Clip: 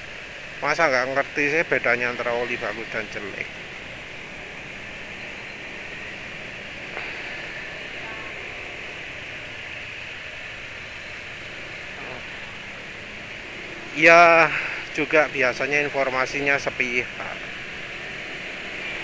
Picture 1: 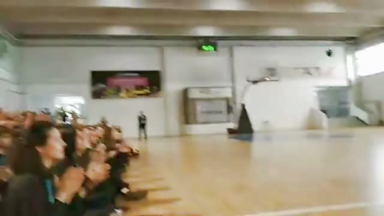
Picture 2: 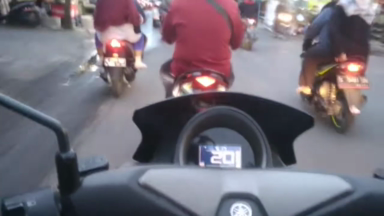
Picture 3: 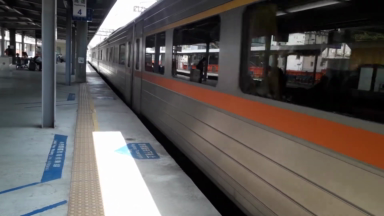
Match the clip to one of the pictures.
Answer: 2